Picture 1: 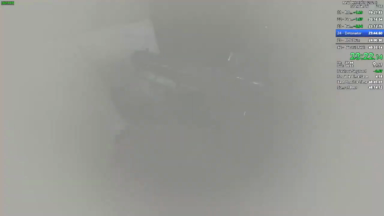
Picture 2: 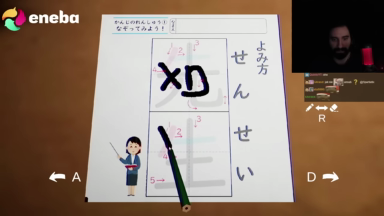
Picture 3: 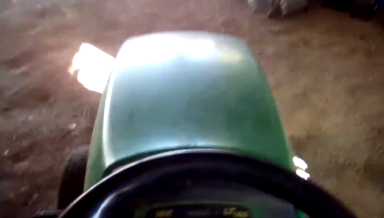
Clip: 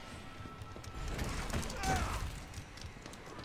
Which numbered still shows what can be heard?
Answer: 1